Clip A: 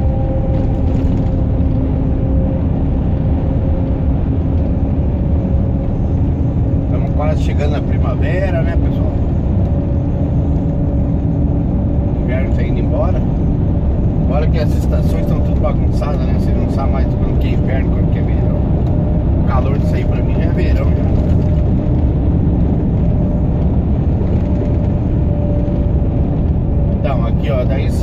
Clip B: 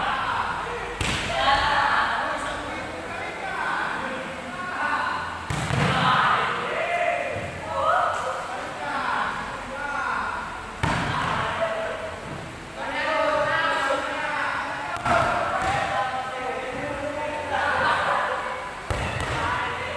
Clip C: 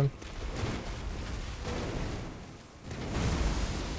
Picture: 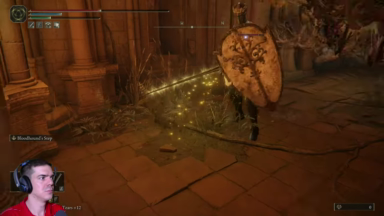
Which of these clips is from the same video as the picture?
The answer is C